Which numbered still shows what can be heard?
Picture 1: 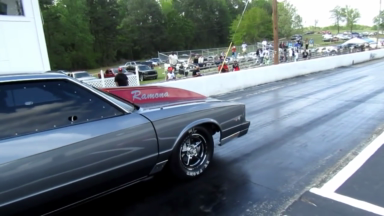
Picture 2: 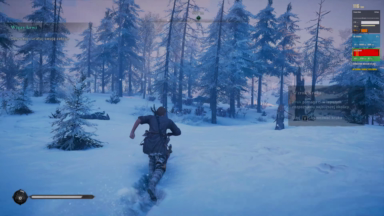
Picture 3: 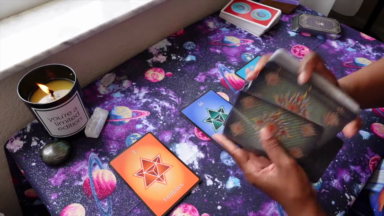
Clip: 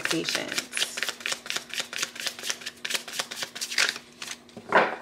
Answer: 3